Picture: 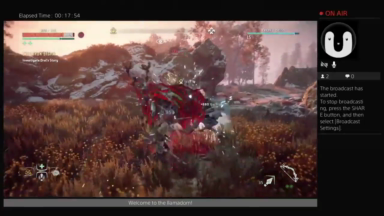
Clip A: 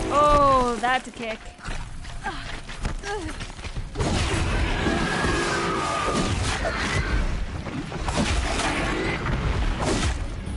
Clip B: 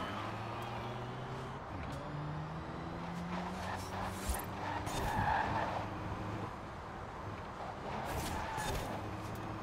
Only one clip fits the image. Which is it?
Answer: A